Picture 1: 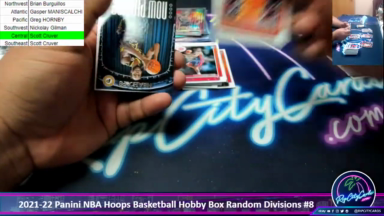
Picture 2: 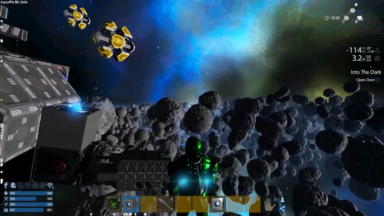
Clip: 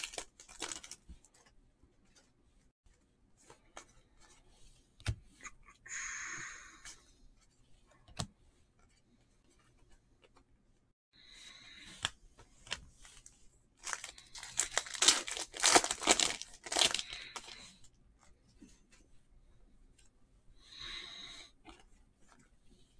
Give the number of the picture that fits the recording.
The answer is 1